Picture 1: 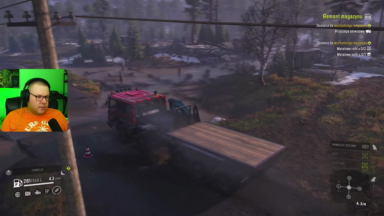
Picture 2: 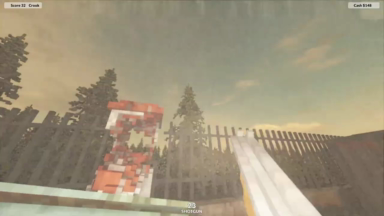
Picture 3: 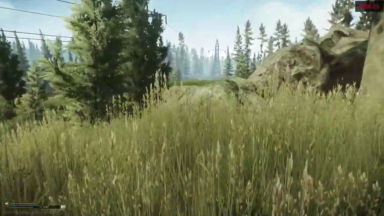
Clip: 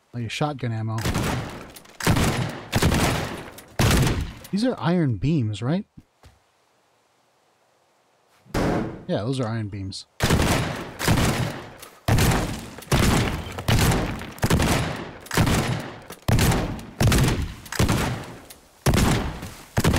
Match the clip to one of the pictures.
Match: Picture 2